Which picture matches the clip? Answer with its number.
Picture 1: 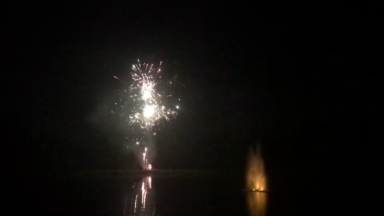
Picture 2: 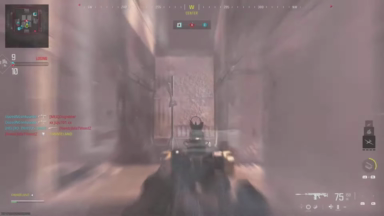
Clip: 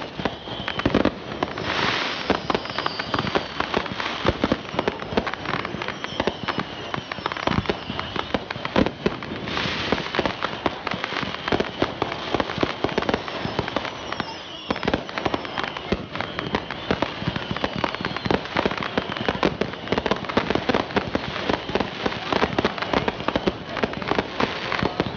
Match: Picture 1